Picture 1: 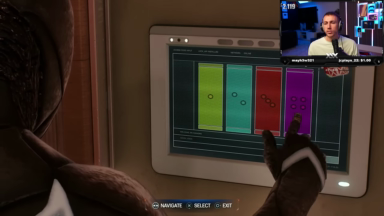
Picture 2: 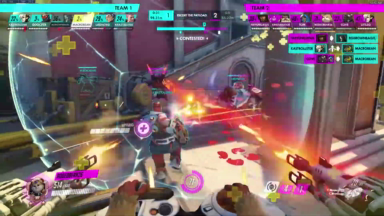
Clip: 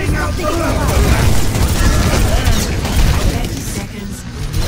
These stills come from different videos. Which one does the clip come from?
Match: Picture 2